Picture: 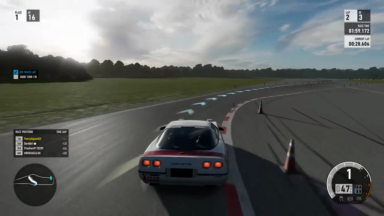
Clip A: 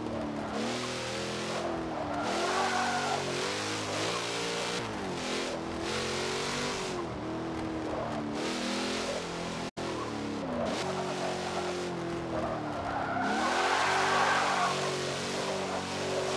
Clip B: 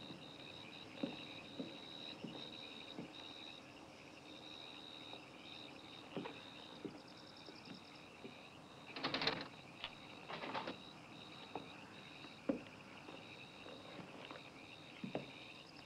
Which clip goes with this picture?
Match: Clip A